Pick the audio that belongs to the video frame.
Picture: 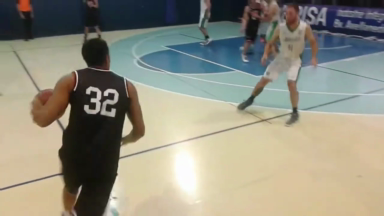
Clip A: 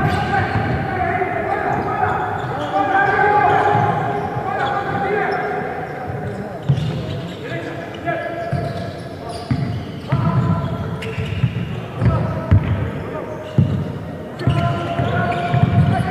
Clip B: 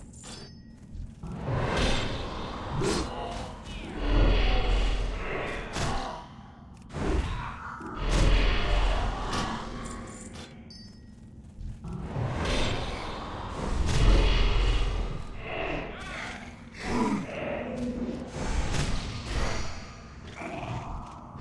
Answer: A